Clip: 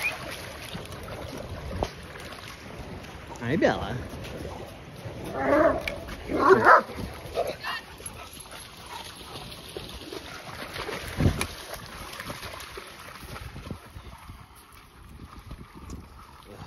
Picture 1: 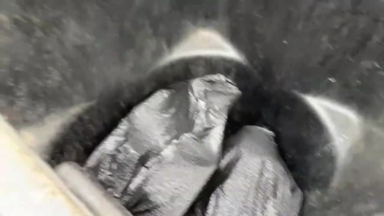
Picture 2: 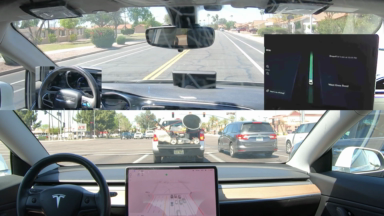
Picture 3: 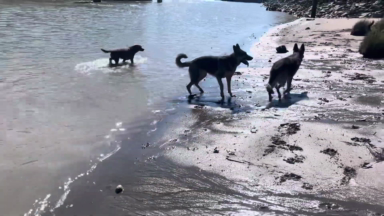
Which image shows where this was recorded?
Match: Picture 3